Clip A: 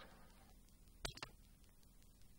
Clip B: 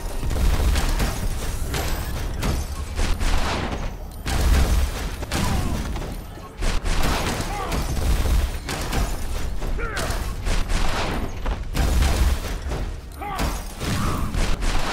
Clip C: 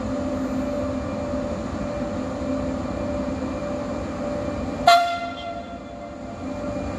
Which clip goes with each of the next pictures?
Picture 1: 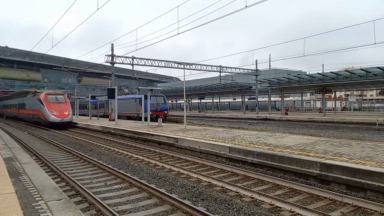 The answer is C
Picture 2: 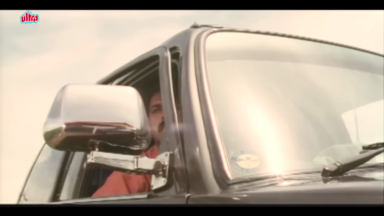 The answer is A